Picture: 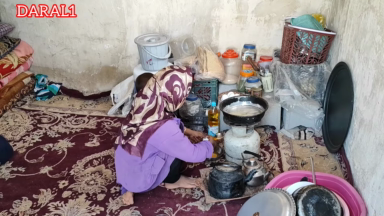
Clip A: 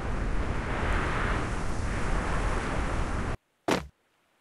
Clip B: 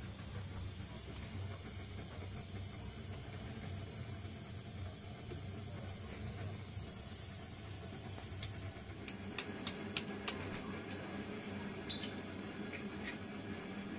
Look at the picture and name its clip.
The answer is B